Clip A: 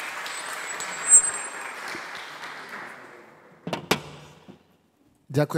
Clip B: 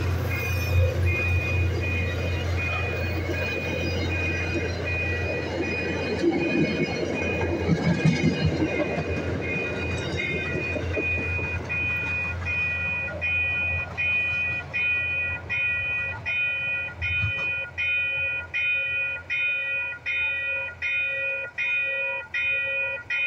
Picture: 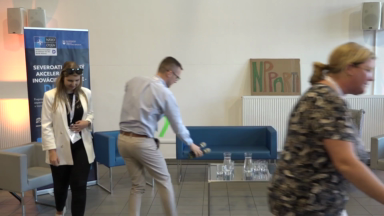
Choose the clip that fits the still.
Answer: A